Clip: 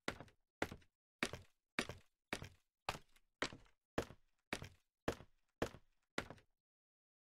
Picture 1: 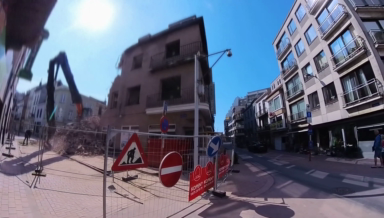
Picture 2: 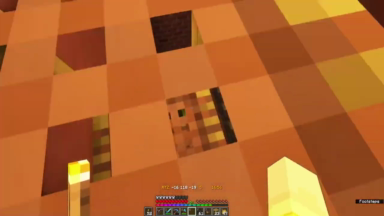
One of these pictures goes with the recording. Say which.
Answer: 2